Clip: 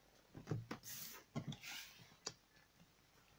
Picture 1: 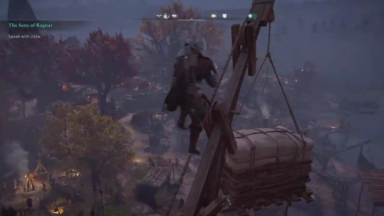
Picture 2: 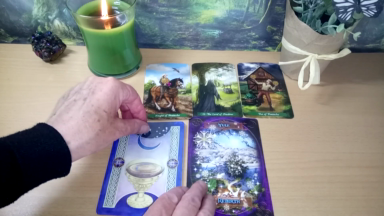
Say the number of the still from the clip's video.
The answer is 2